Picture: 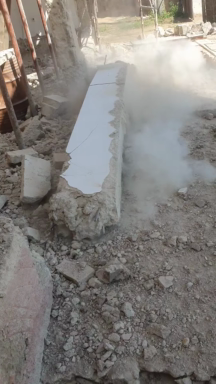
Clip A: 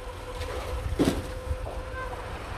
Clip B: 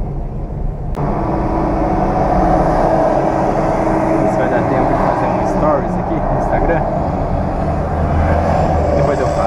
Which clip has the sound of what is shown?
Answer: A